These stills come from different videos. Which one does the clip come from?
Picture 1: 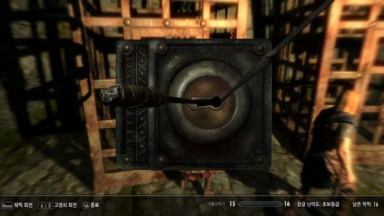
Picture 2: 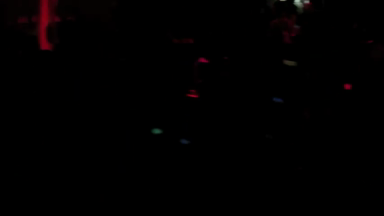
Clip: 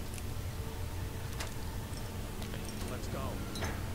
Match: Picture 1